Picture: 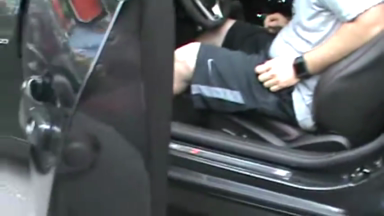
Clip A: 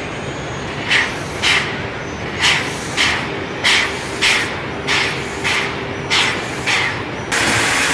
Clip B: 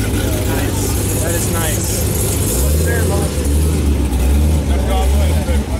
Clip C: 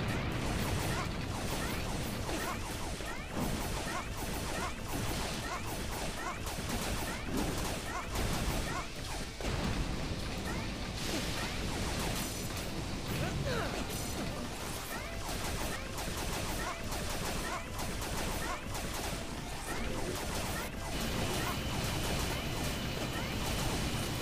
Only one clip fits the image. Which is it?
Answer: B